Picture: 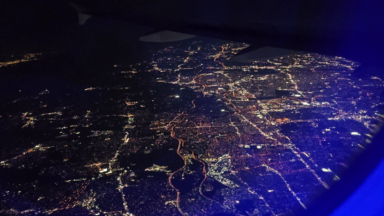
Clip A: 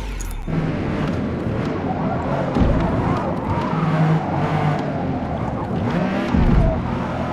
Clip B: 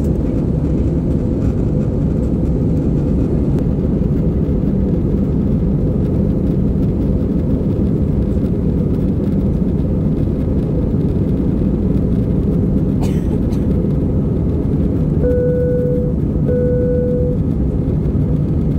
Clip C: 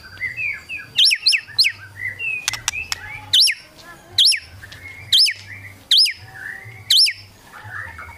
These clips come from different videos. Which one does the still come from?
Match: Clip B